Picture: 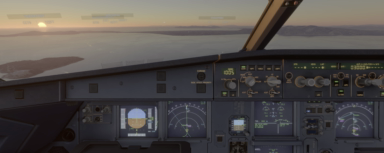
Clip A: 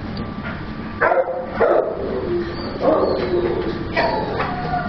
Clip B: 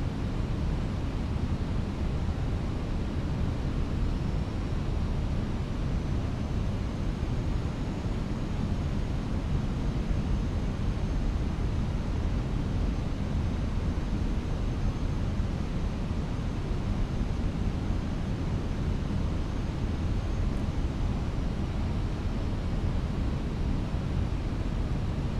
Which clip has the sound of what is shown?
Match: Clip B